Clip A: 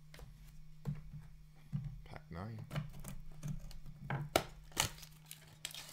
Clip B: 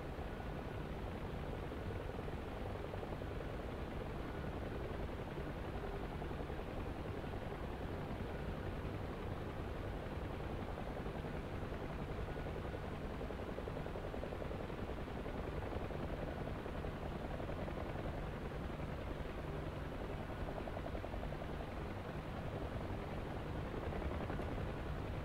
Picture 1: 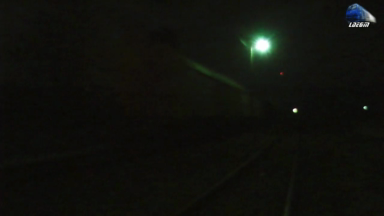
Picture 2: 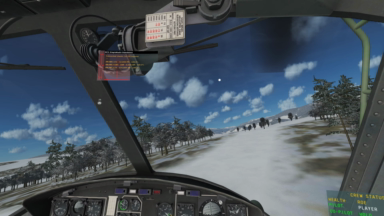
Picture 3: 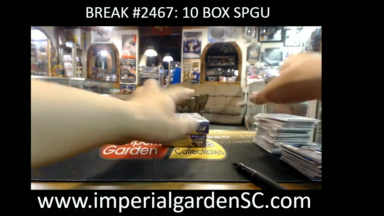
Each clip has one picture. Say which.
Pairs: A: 3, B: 2